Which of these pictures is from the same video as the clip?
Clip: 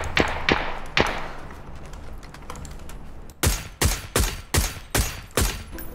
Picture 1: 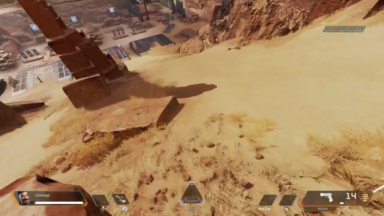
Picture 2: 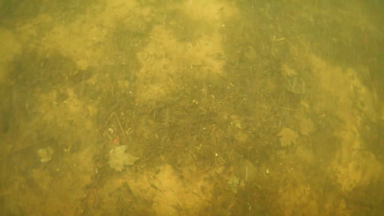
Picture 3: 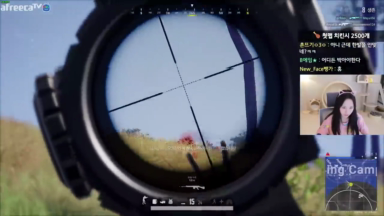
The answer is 3